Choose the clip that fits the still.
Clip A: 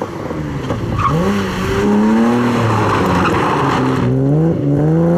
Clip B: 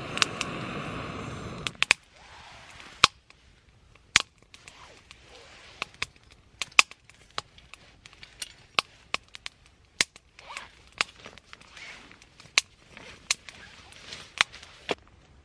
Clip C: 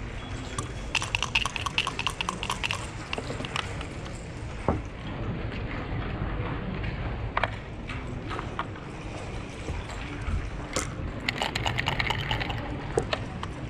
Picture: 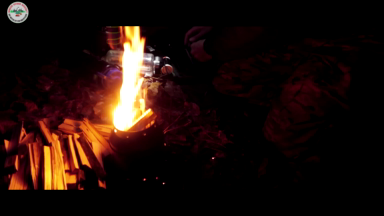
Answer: B